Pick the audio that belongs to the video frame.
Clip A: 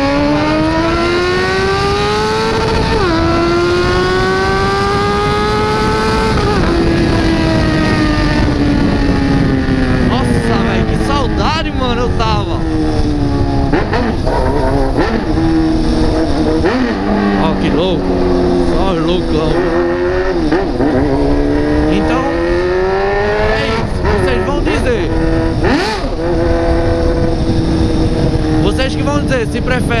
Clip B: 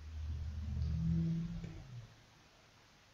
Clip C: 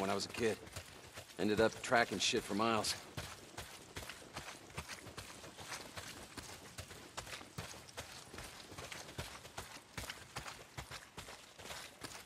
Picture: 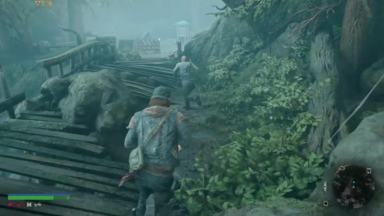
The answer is C